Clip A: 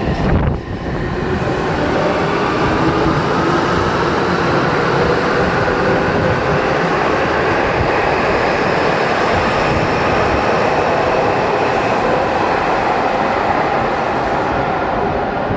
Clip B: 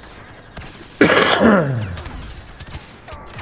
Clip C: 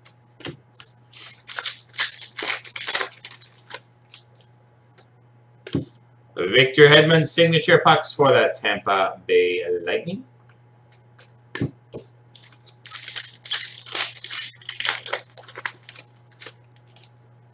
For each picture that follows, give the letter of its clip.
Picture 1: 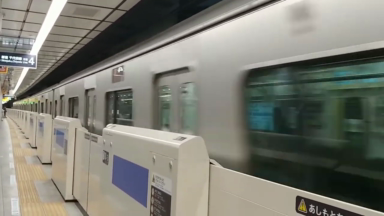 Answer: A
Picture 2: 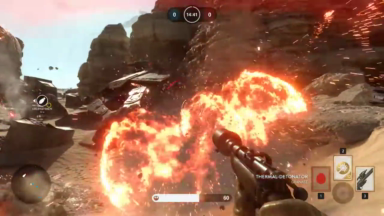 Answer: B